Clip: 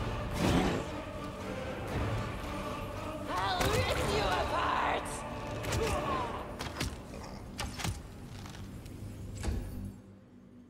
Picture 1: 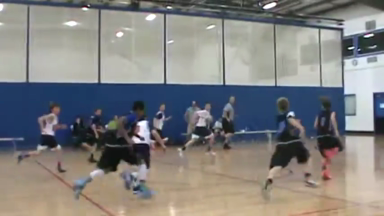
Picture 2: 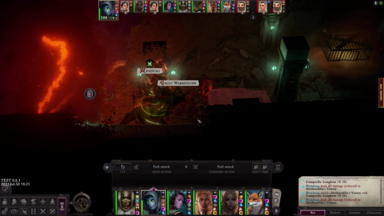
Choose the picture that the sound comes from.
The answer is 2